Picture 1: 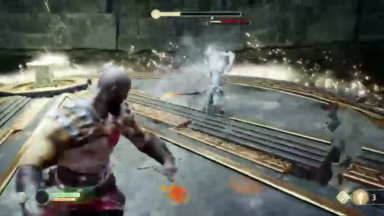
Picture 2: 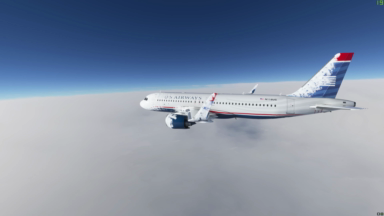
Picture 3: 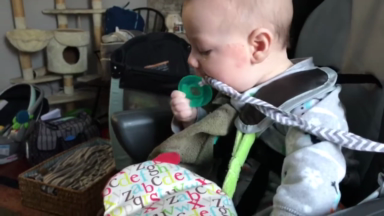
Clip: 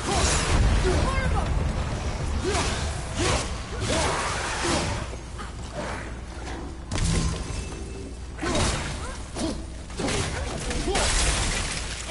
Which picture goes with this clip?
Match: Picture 1